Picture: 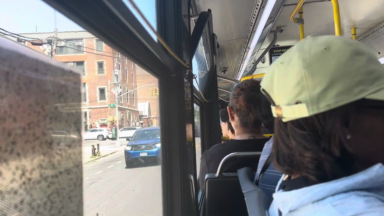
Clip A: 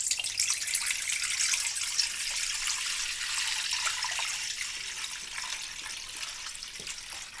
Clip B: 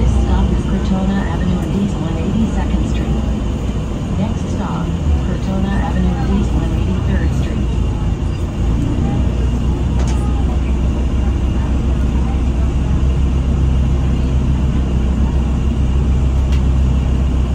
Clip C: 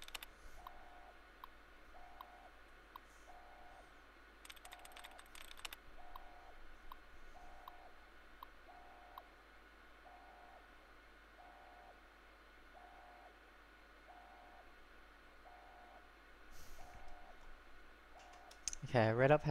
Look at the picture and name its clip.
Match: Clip B